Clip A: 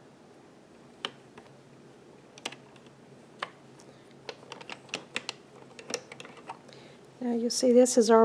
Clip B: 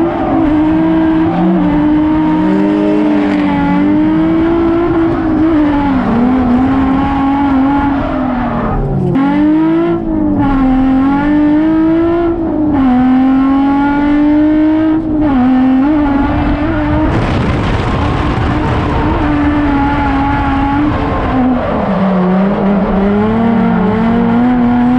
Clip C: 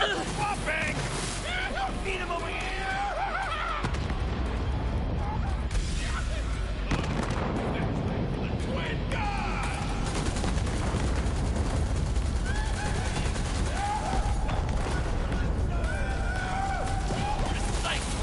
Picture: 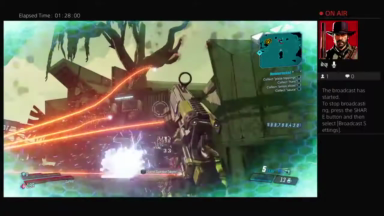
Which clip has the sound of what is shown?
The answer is C